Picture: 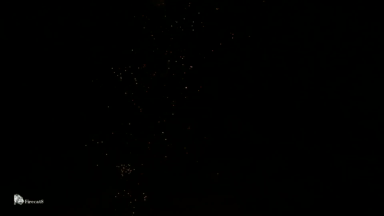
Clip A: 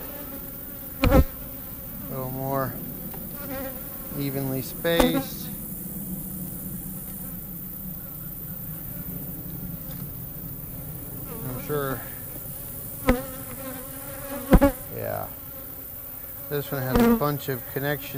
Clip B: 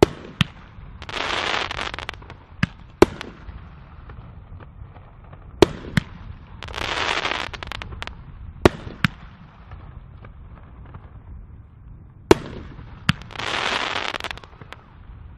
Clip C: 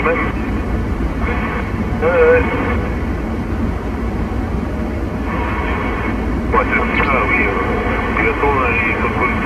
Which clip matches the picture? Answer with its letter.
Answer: B